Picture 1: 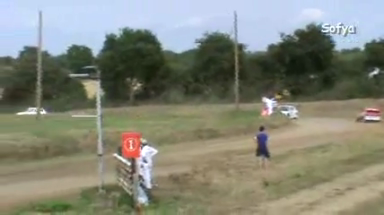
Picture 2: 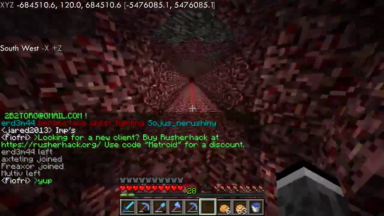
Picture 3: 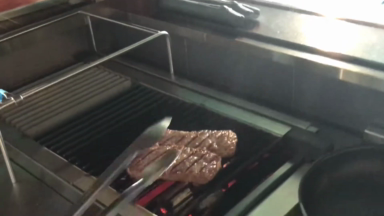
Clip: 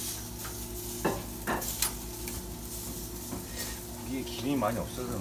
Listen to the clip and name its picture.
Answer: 3